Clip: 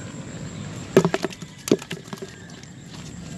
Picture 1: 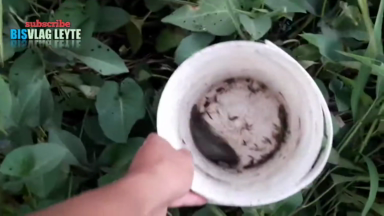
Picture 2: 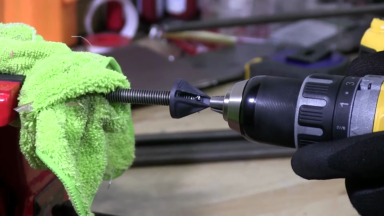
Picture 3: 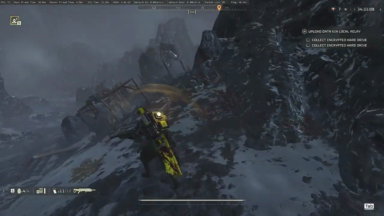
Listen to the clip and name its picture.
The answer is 1